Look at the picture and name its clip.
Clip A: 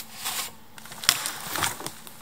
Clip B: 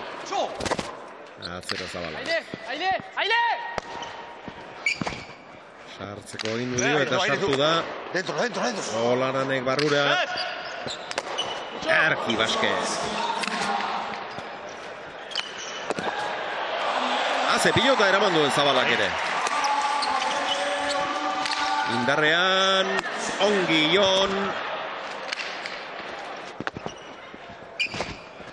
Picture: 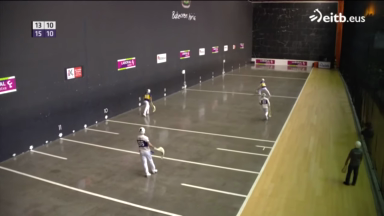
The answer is B